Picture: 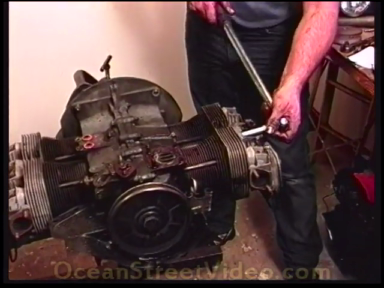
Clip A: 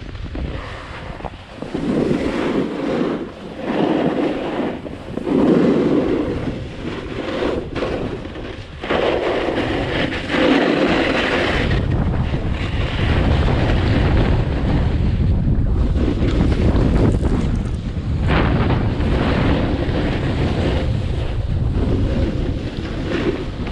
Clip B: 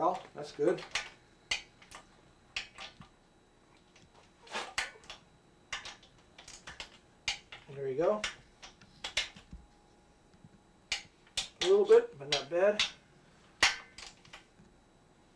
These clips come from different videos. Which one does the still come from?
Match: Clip B